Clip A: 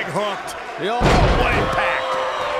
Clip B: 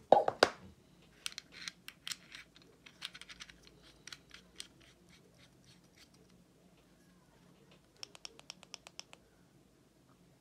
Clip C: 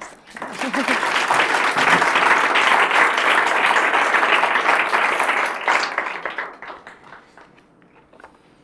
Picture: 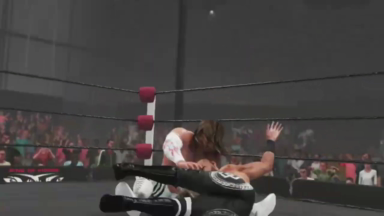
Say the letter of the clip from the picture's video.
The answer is A